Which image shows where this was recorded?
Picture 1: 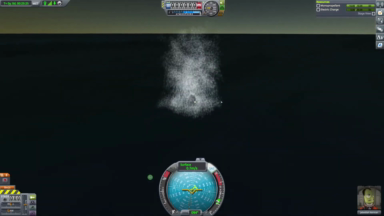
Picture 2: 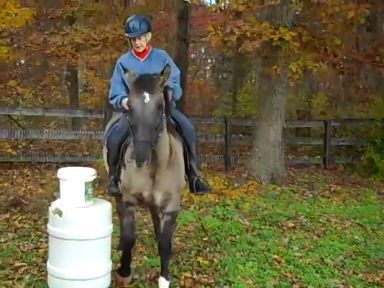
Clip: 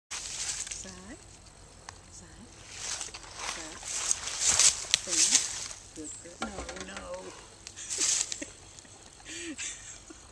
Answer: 2